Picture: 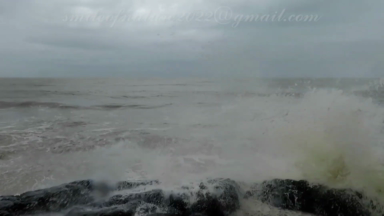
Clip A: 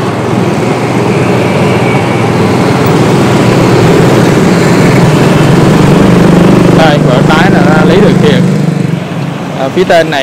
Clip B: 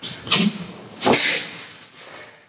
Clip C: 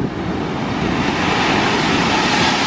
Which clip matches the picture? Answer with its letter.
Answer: C